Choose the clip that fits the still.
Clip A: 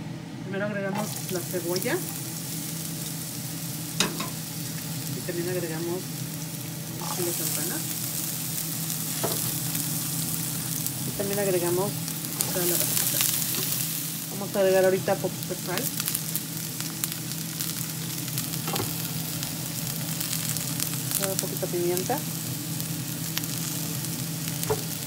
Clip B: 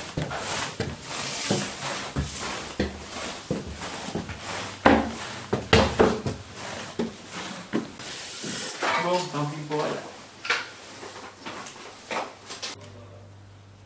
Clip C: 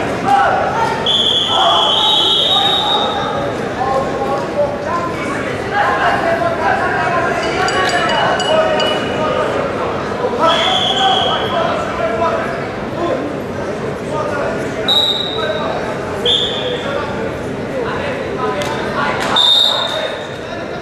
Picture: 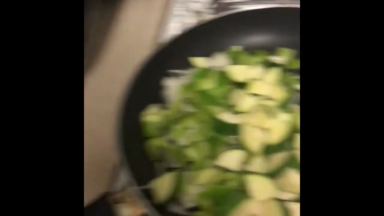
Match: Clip A